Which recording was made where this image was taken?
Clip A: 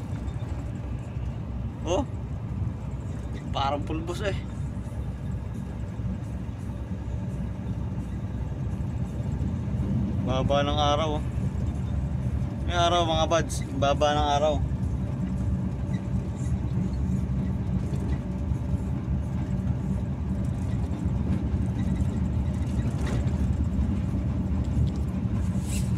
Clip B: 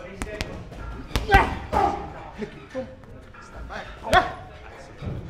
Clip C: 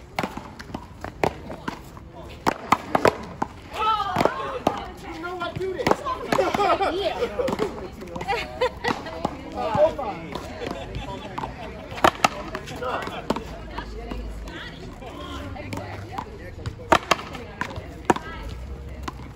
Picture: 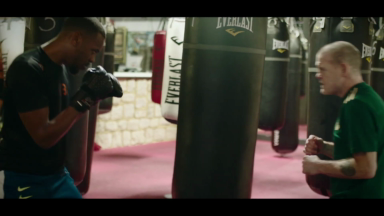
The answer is B